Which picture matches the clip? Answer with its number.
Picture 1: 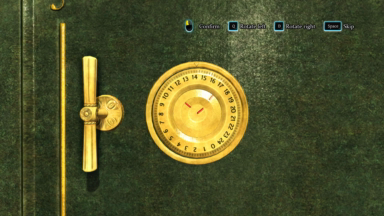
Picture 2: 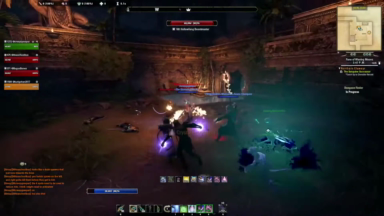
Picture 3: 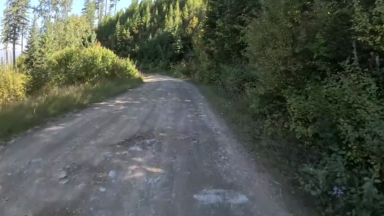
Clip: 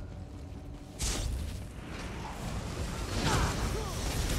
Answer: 2